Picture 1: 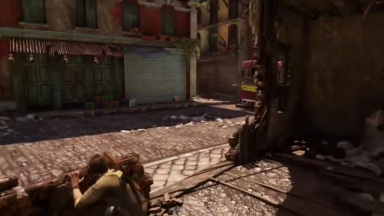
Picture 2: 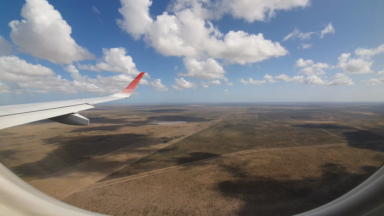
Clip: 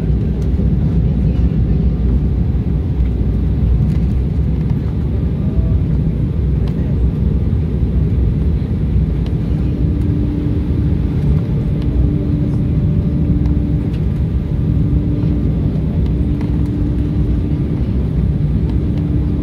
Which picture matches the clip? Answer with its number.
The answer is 2